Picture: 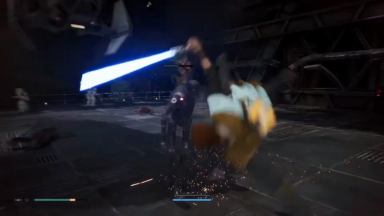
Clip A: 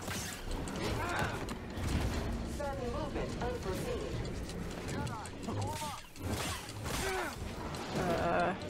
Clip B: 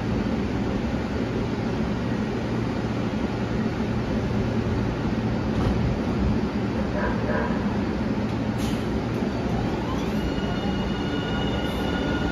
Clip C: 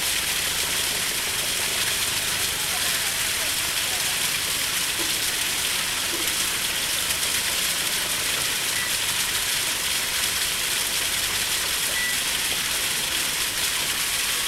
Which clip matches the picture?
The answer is A